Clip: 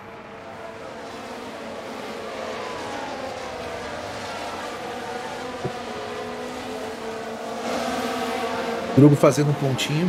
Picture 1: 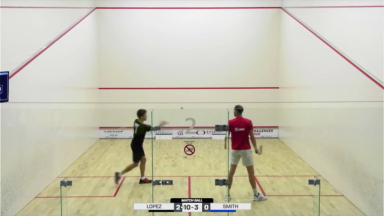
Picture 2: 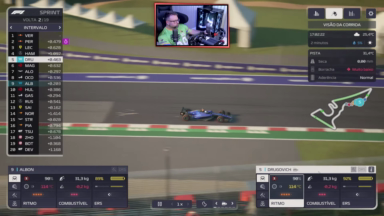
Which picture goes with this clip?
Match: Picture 2